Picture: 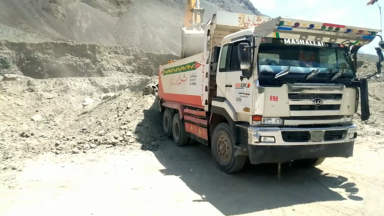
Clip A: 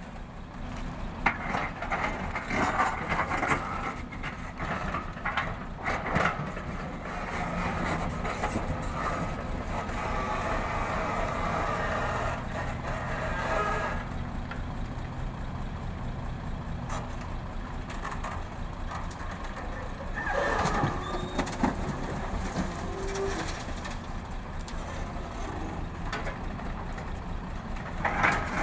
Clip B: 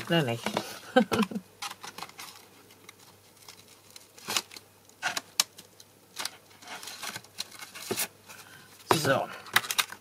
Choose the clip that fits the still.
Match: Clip A